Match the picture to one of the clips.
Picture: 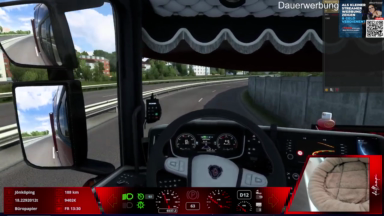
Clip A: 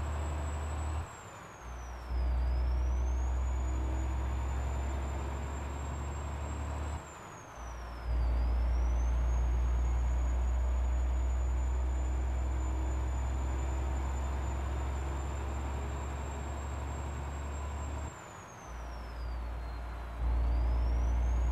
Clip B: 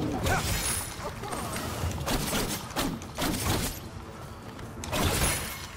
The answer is A